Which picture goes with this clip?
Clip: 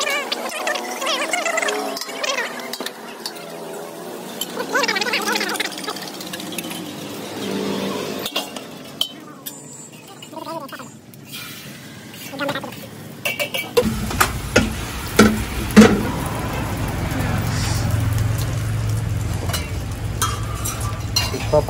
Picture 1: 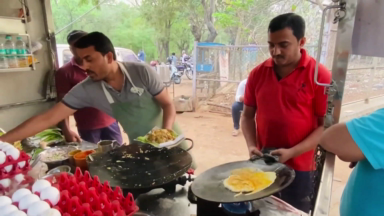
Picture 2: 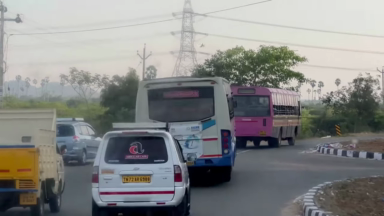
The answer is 1